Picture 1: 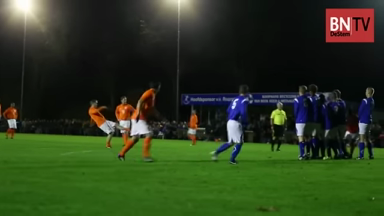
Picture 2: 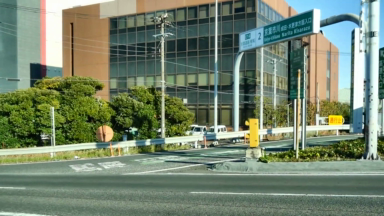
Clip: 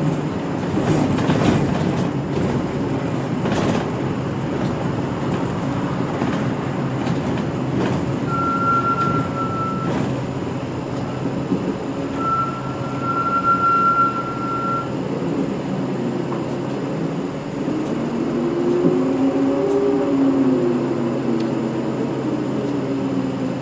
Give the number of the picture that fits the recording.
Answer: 2